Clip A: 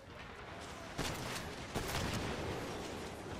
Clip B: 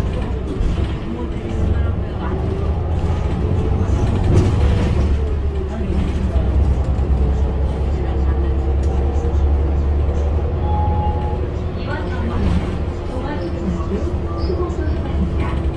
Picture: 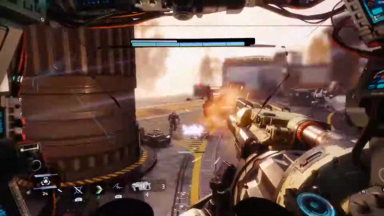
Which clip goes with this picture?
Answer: A